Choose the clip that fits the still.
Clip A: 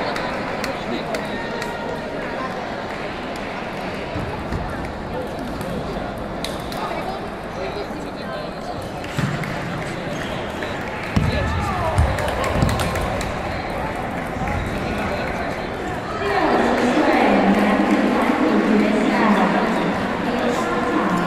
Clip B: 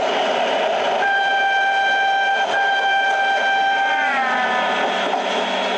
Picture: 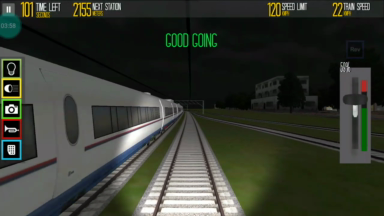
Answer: B